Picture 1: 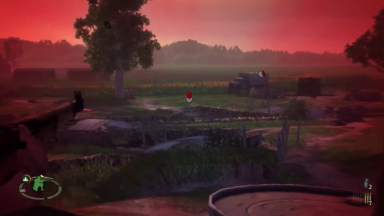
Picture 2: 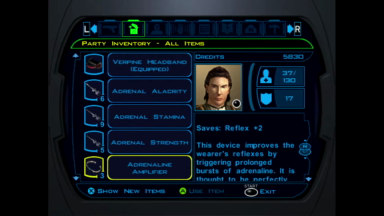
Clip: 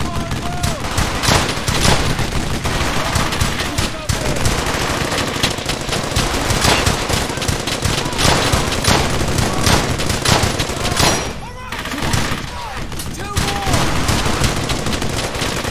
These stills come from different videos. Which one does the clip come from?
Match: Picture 1